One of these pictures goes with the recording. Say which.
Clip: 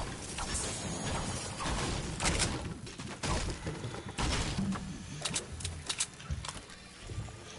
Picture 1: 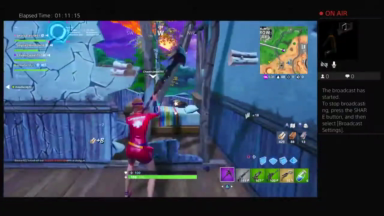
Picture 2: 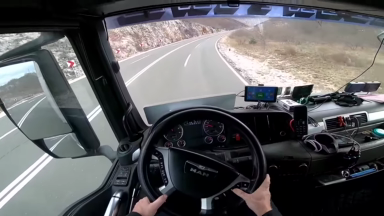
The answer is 1